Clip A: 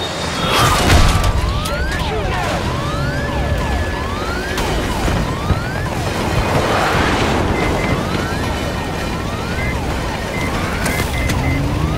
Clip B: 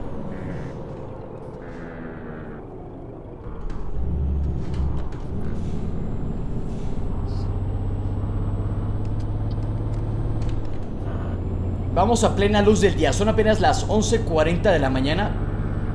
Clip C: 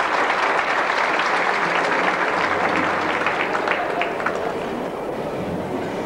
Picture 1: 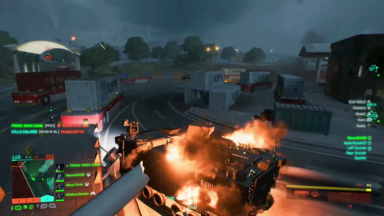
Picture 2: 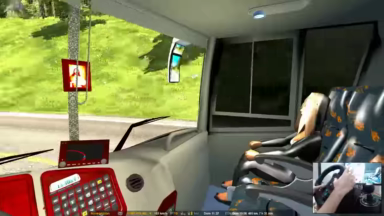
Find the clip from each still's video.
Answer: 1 A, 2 B